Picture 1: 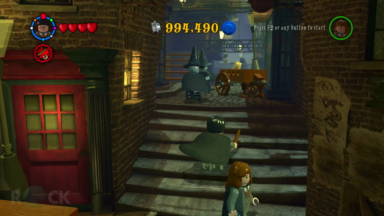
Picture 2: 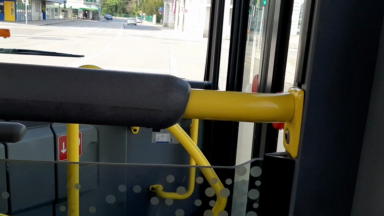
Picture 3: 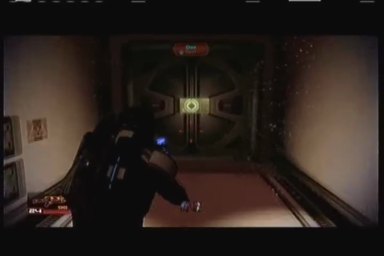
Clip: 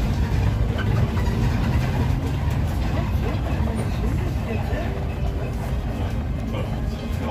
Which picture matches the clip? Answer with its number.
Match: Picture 2